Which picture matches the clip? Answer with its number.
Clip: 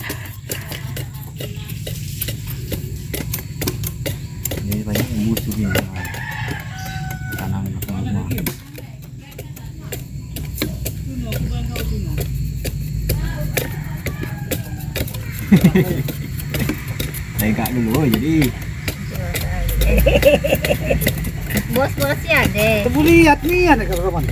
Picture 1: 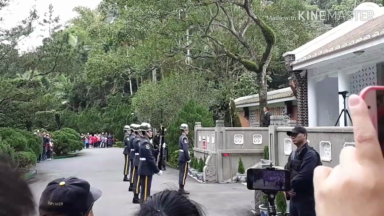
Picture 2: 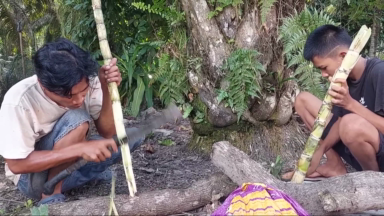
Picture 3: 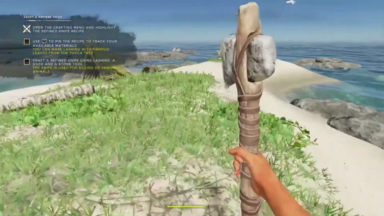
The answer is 2